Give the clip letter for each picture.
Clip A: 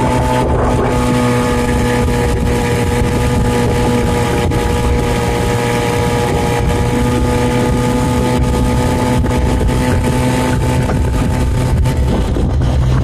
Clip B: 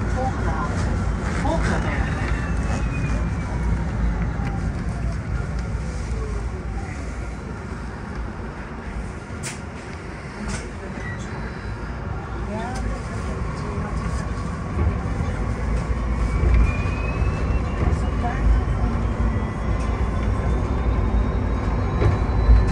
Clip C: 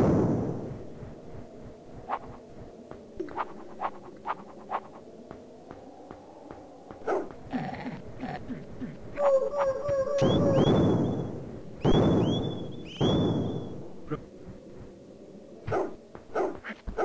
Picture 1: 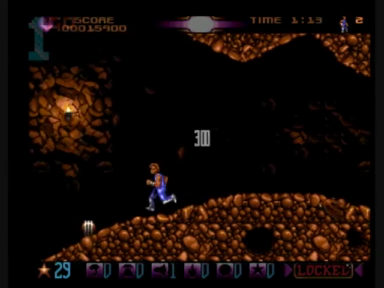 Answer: C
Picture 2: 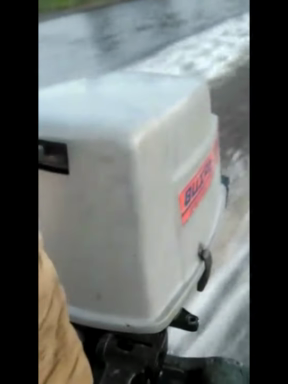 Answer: A